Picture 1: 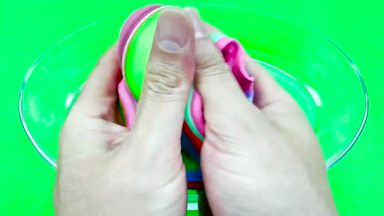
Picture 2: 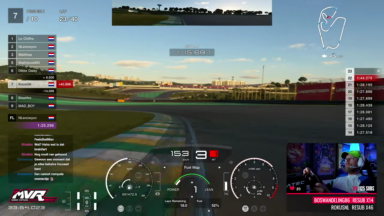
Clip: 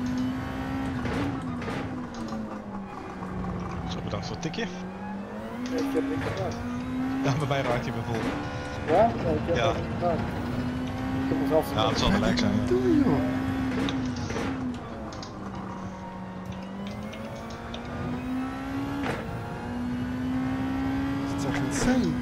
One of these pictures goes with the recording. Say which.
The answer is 2